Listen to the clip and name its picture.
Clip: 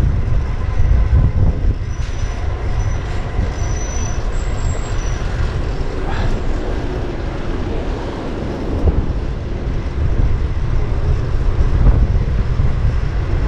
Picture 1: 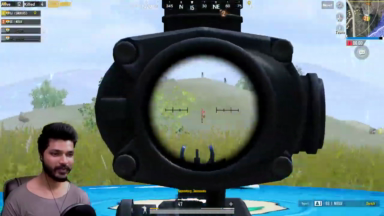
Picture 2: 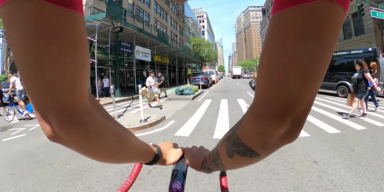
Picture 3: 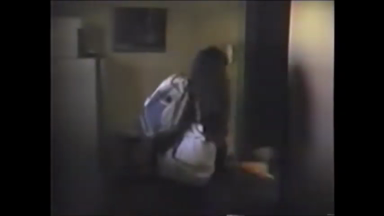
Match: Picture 2